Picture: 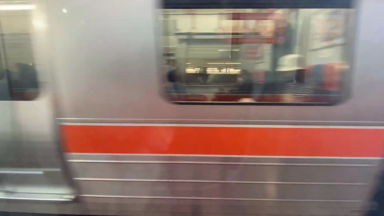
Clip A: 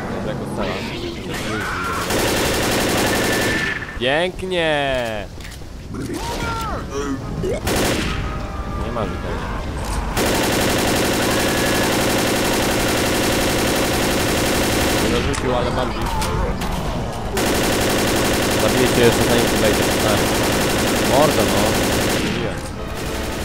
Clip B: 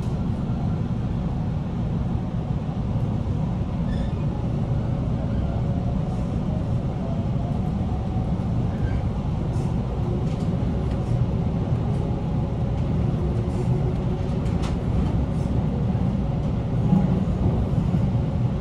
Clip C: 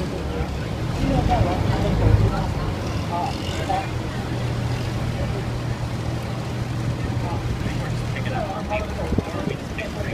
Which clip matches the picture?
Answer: B